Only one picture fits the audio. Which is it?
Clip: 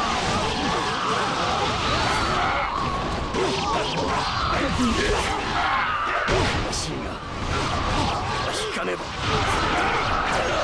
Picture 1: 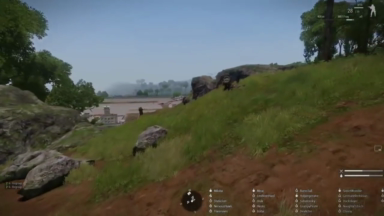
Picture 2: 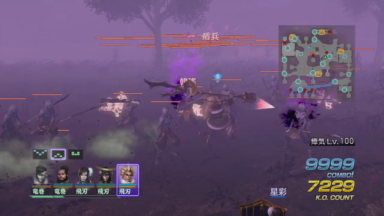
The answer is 2